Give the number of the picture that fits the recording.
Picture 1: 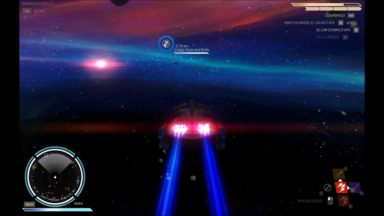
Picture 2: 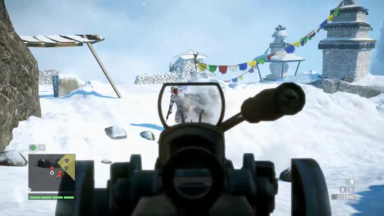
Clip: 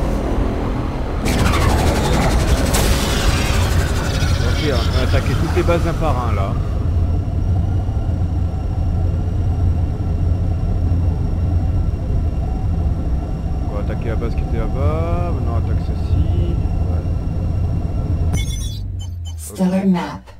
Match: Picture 1